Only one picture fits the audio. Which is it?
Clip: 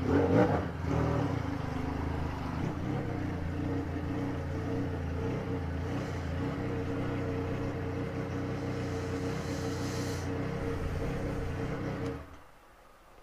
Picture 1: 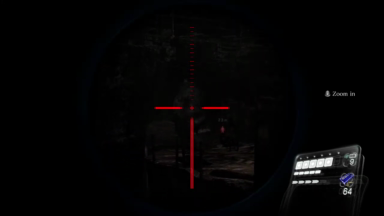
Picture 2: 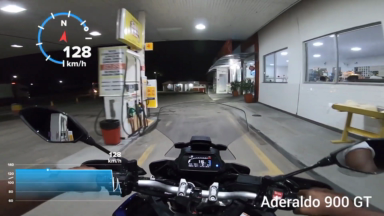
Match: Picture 2